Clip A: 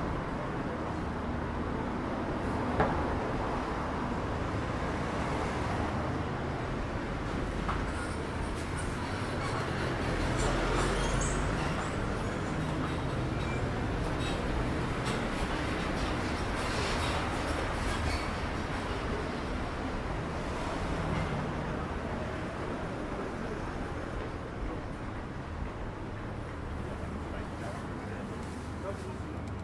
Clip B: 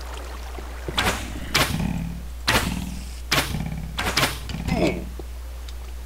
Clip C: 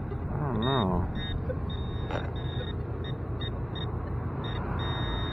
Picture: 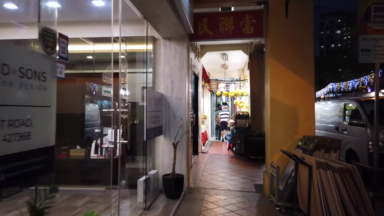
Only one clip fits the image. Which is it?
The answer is A